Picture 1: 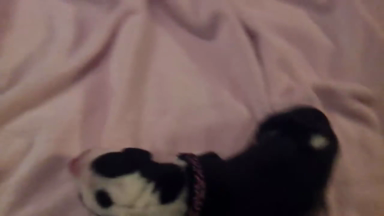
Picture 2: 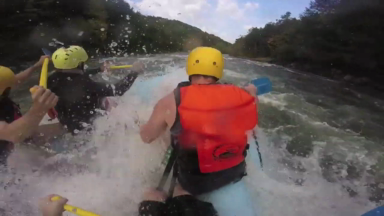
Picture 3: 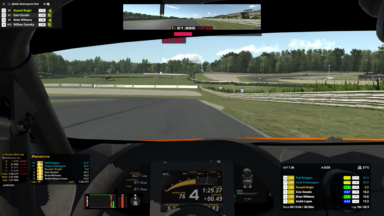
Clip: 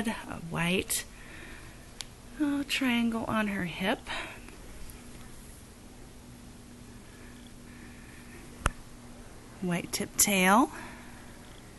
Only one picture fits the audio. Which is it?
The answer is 1